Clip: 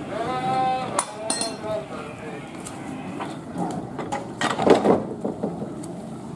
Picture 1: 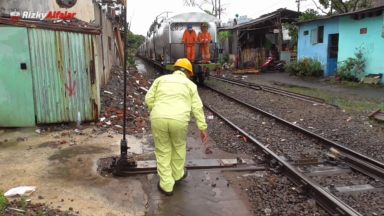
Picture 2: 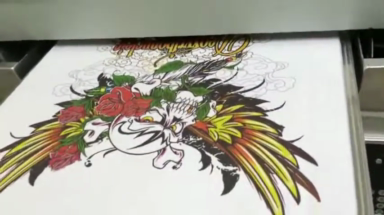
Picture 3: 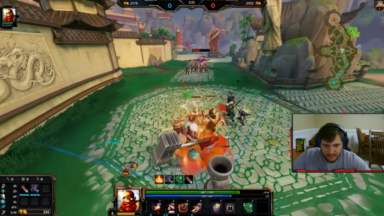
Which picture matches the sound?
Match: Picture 1